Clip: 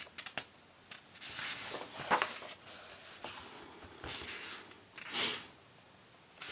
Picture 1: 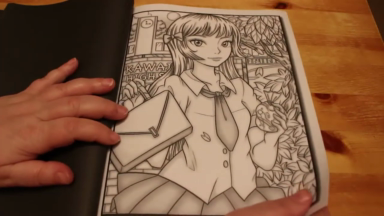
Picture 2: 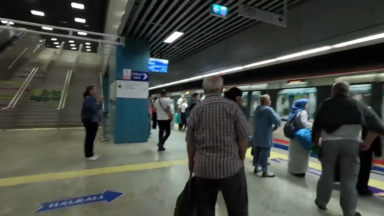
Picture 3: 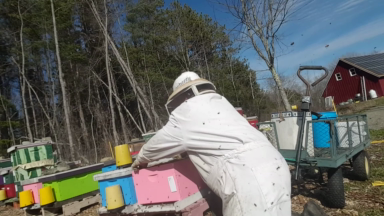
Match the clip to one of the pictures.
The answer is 1